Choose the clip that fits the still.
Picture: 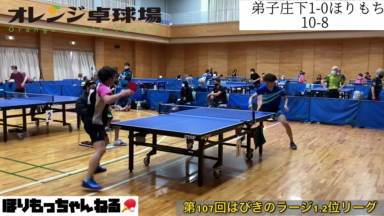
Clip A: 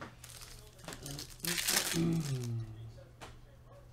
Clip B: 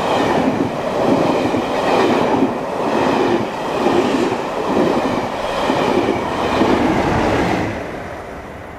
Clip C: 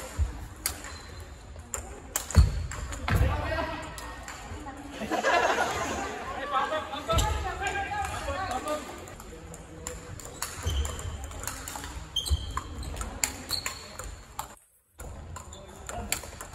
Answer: C